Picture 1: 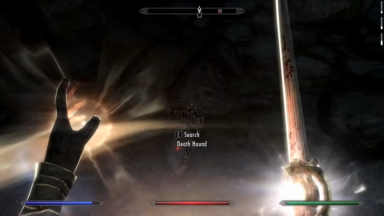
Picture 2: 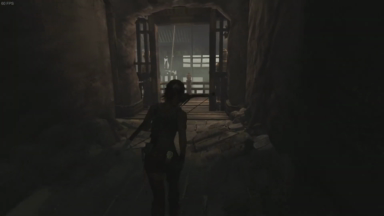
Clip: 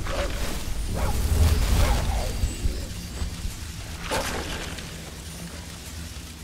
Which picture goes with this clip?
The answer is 1